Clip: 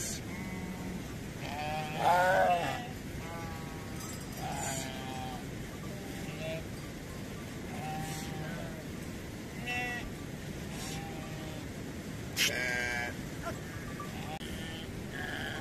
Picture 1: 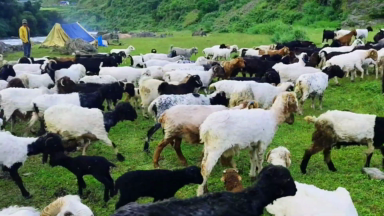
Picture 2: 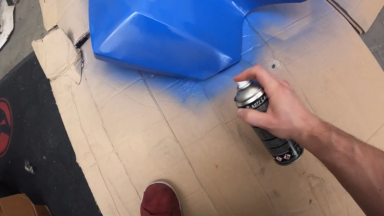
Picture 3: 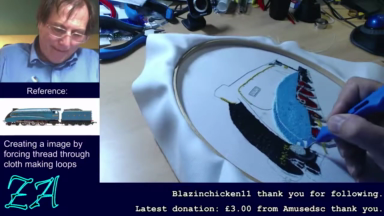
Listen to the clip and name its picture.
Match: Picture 1